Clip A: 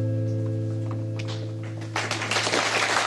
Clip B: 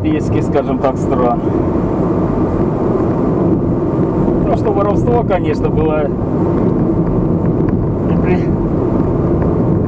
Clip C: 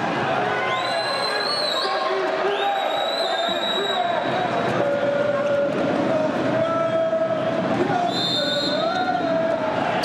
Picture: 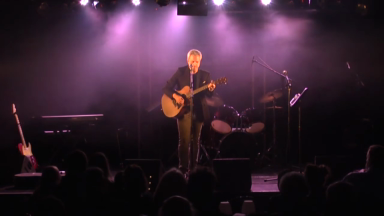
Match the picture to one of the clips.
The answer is A